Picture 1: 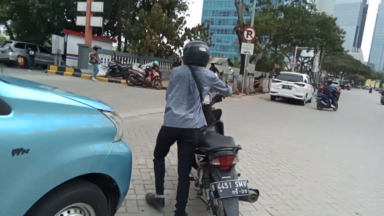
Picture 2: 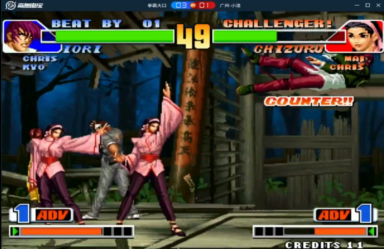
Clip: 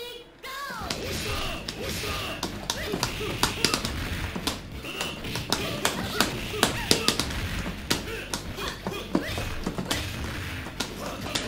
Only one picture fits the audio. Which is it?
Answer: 2